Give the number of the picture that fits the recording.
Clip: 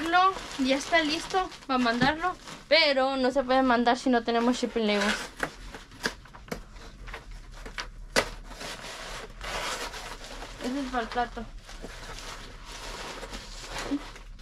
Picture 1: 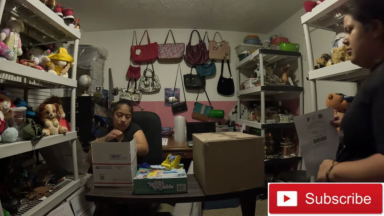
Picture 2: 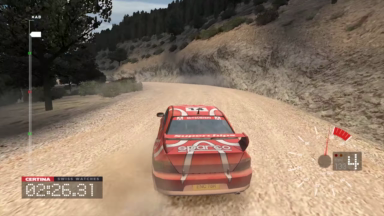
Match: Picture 1